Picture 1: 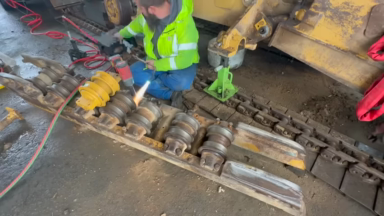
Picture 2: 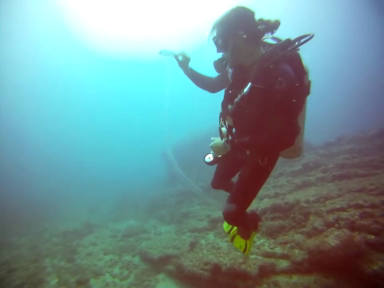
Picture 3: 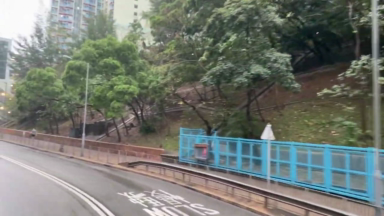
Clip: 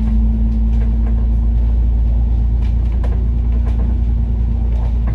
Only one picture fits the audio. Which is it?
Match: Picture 3